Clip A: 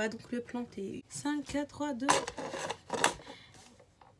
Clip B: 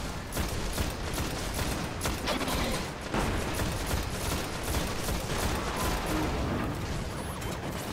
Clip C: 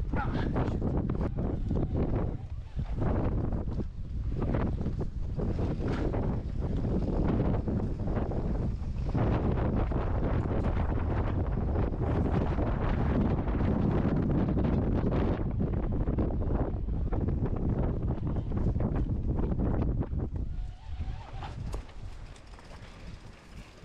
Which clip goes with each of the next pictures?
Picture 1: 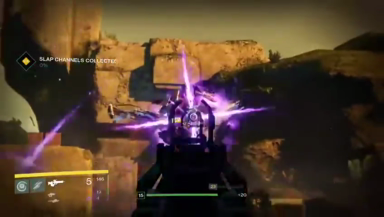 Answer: B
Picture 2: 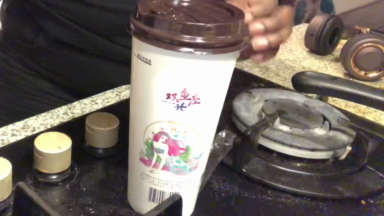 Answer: A